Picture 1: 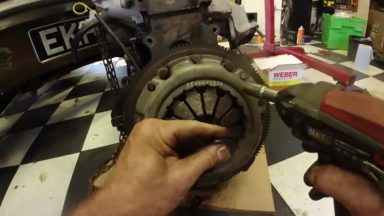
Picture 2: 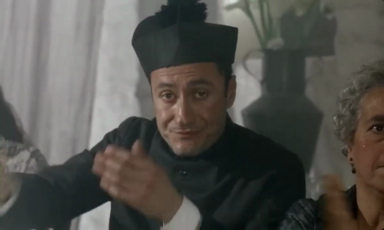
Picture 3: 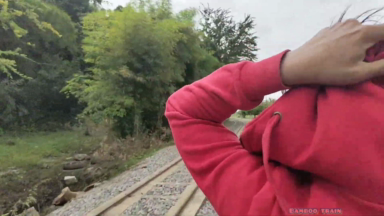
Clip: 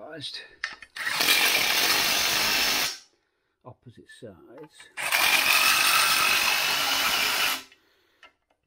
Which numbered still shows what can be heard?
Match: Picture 1